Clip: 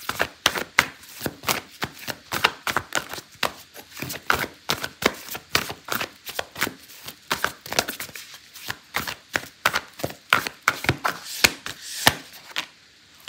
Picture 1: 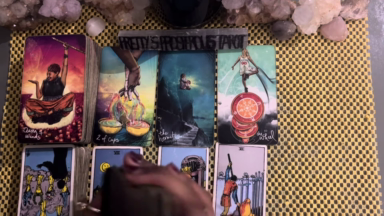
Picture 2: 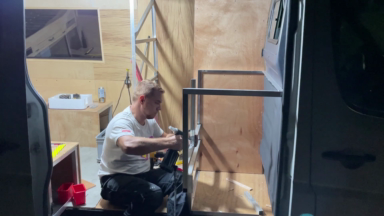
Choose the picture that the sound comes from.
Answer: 1